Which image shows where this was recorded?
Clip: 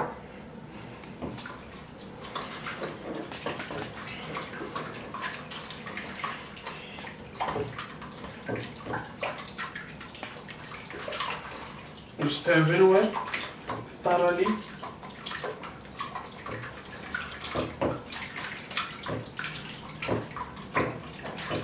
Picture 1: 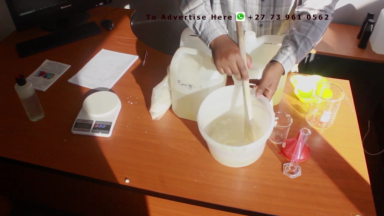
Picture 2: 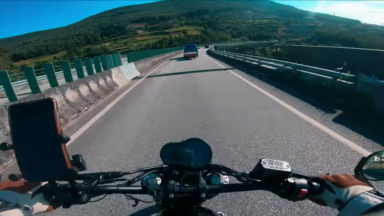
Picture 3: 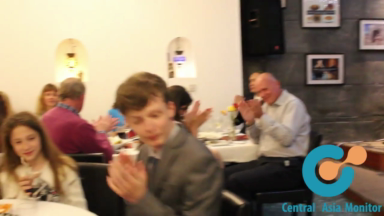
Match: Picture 1